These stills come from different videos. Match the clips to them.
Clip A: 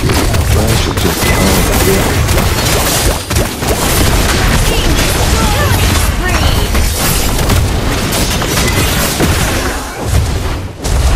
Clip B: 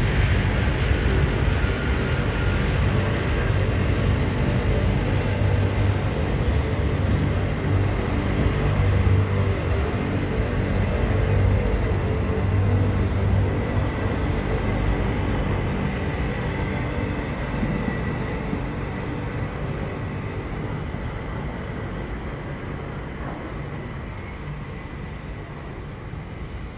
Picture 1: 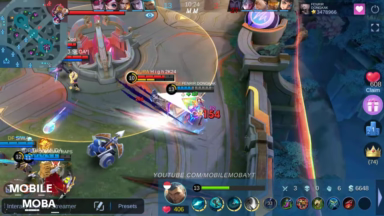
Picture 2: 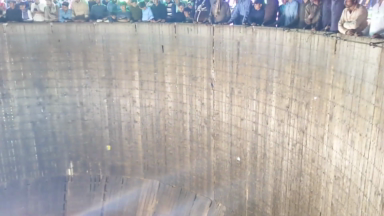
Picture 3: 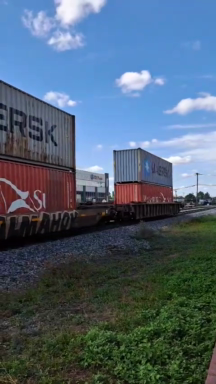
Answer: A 1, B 3